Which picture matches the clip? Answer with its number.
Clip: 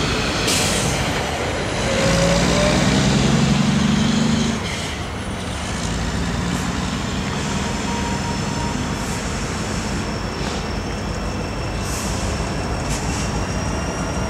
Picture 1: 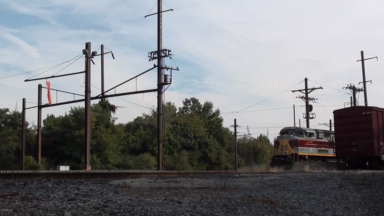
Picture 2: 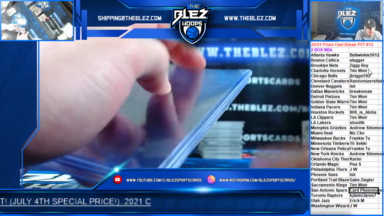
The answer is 1